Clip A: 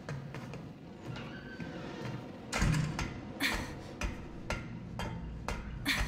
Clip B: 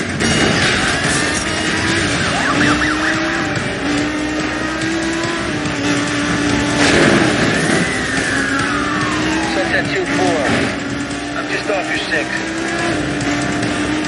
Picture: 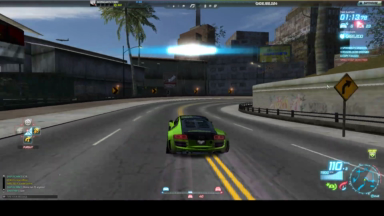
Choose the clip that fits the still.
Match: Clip B